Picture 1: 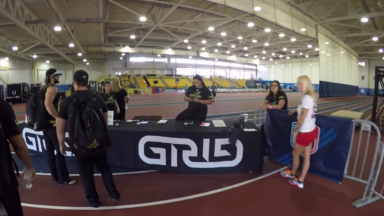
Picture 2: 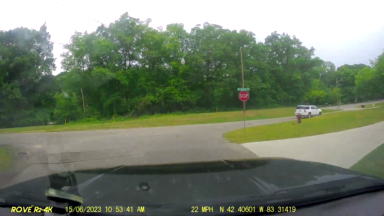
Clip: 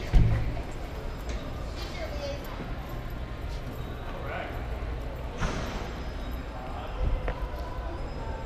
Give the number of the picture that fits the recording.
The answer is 1